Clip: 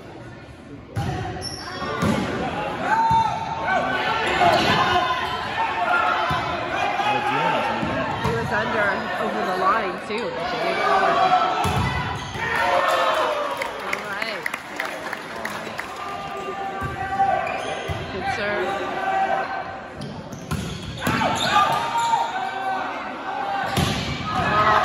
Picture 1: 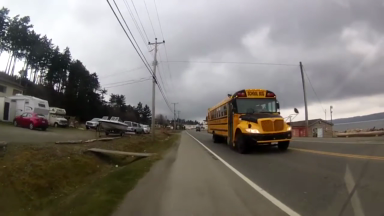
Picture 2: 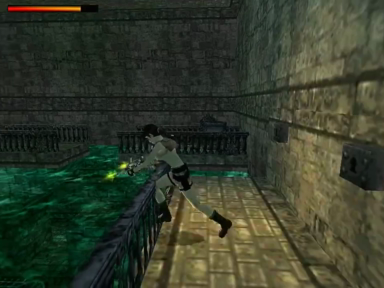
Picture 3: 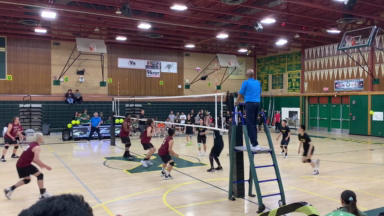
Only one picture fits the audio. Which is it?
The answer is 3